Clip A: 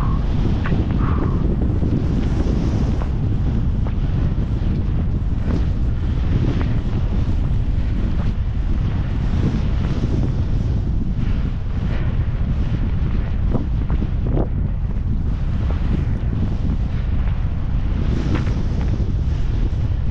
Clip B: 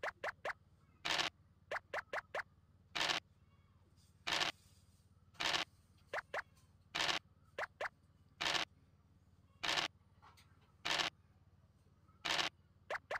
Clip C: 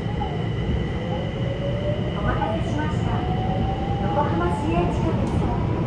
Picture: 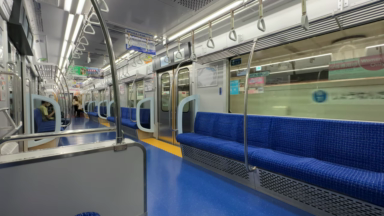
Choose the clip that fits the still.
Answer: C